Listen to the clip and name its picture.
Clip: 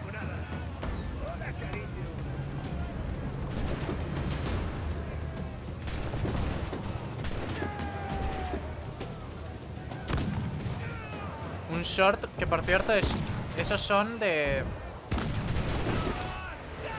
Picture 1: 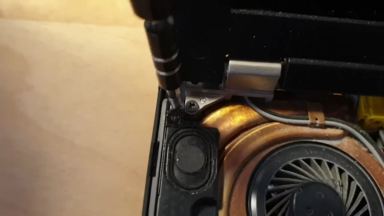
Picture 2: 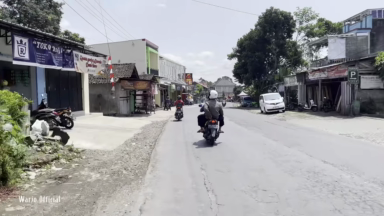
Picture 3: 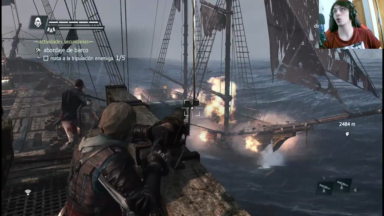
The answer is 3